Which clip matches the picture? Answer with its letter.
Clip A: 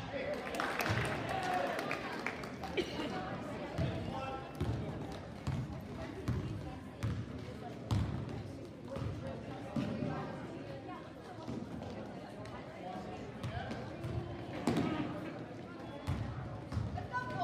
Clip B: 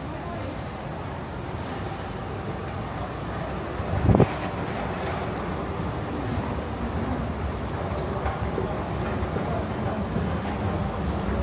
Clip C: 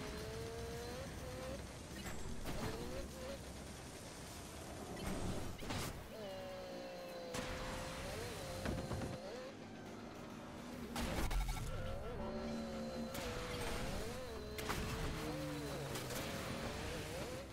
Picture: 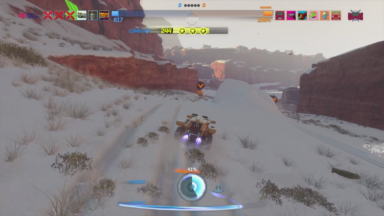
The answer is C